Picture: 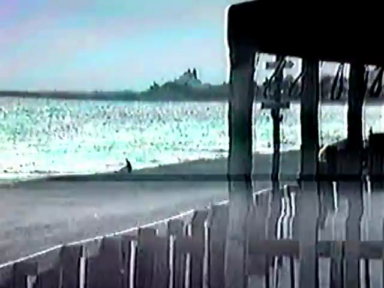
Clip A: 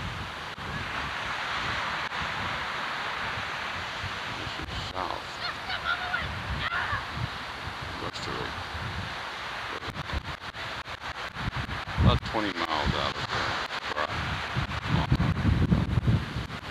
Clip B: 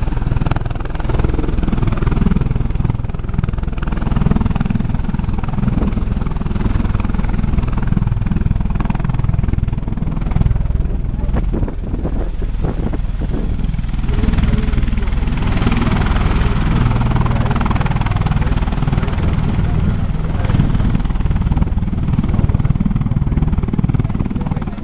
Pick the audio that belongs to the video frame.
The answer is A